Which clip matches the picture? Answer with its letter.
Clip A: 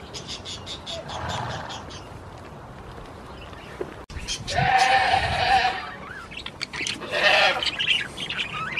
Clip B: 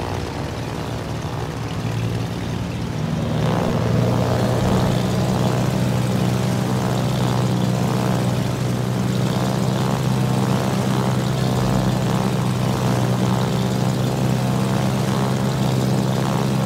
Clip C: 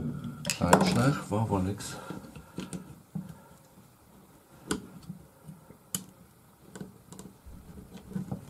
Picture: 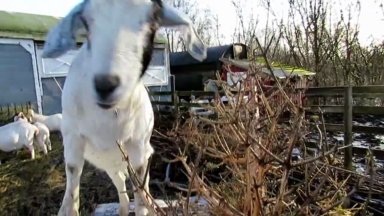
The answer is A